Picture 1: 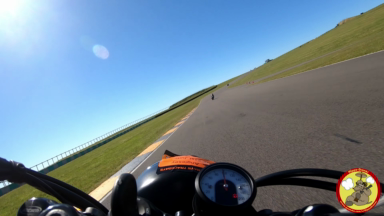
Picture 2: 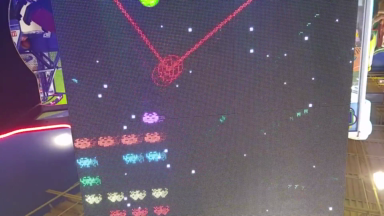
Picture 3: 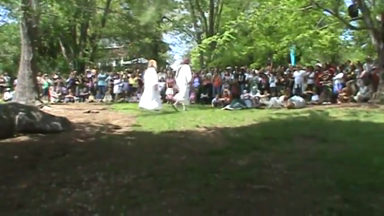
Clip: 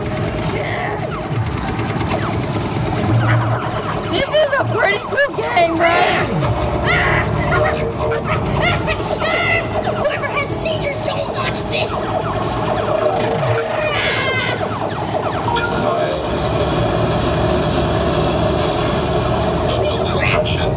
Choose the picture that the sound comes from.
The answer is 2